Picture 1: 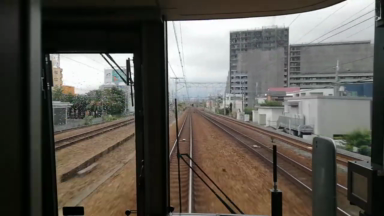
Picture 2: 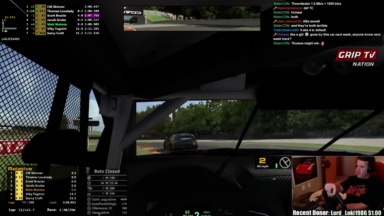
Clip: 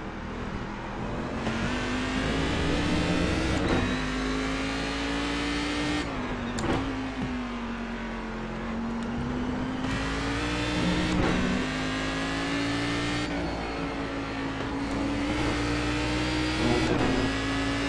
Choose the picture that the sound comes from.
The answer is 2